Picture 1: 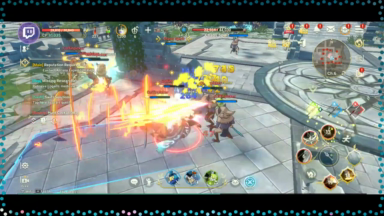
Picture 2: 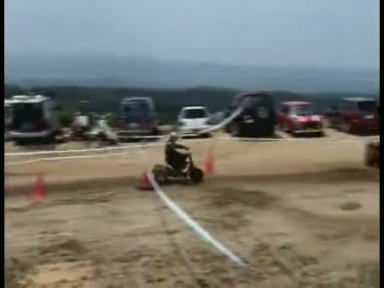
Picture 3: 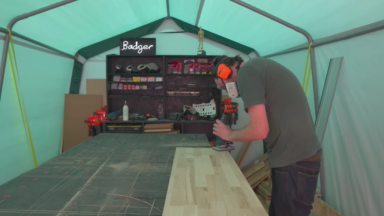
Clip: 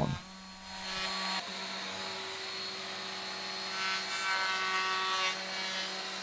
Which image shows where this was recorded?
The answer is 3